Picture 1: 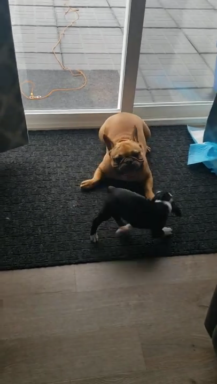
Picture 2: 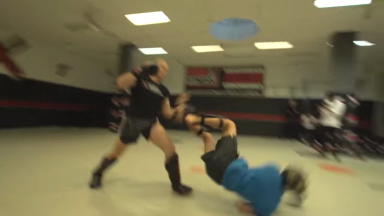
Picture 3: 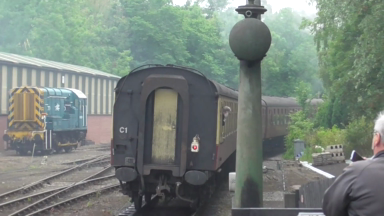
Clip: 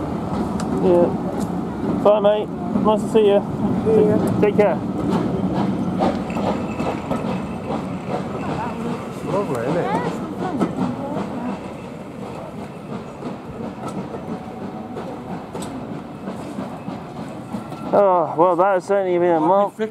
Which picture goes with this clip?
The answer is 3